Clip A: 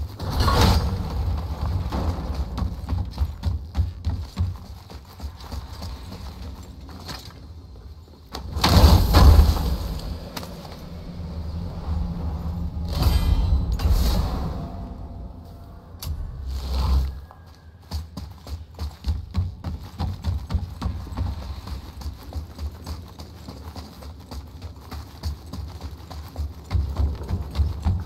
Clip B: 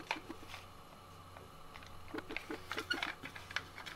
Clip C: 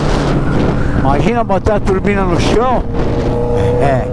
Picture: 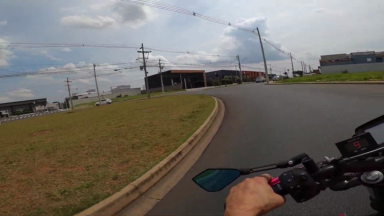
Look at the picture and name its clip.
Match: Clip C